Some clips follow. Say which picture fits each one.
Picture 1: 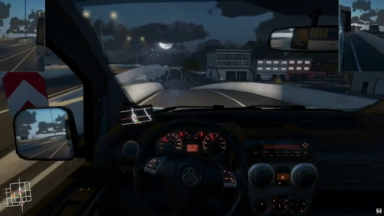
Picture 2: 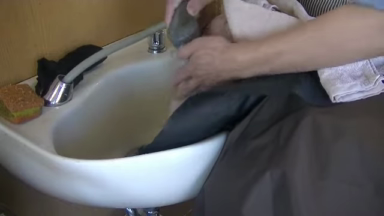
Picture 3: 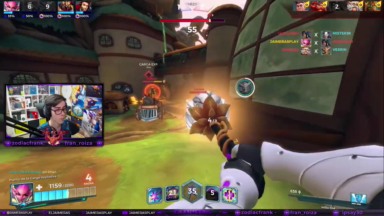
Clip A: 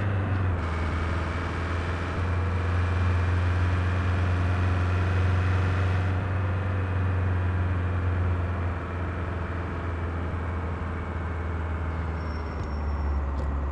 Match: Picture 1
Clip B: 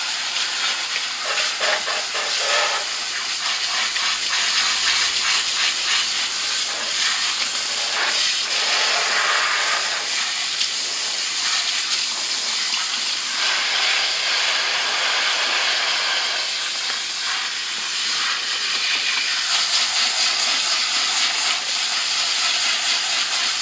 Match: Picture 2